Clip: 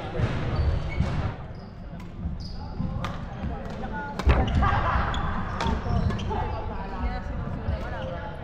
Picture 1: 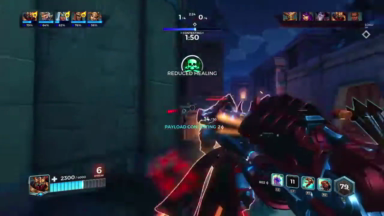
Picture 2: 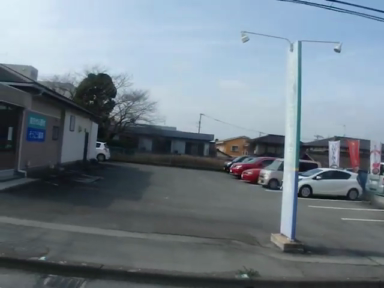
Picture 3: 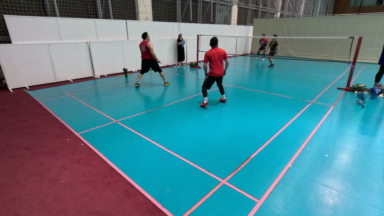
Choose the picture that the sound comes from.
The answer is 3